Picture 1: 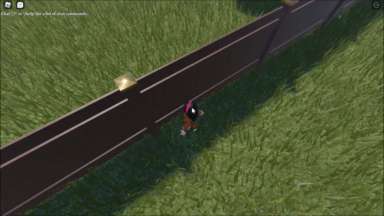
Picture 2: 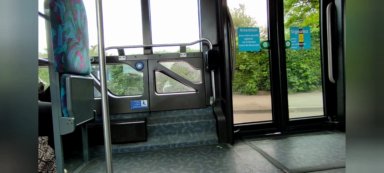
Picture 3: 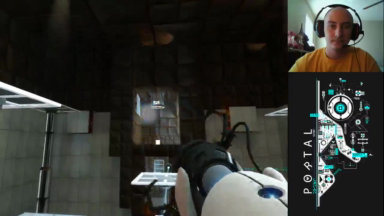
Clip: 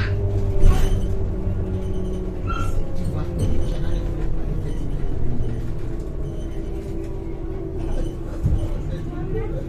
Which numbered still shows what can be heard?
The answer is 2